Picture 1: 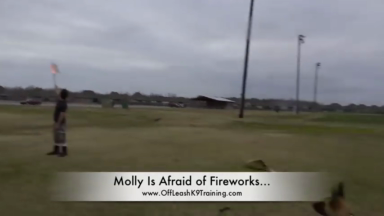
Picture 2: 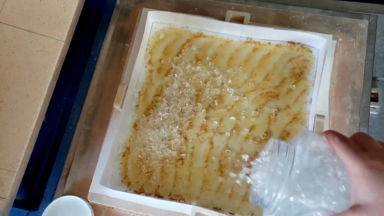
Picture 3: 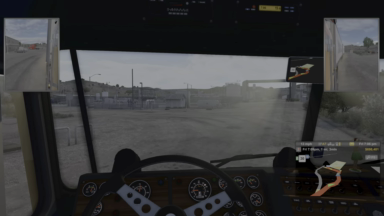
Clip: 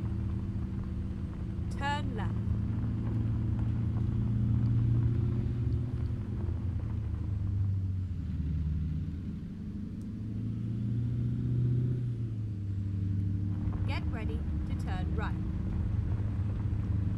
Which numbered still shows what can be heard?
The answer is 3